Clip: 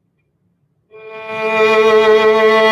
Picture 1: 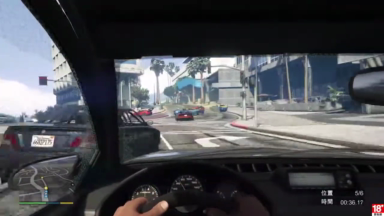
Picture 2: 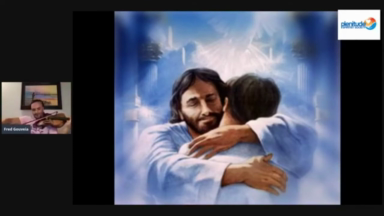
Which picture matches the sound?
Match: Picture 2